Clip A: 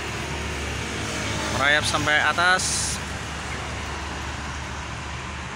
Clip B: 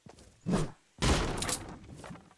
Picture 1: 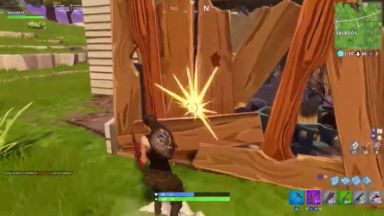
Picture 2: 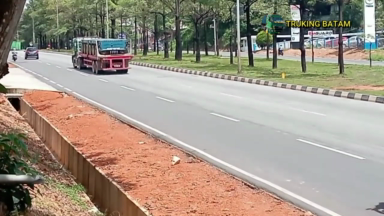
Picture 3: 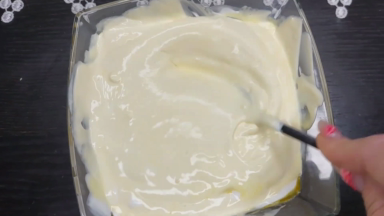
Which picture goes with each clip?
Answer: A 2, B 1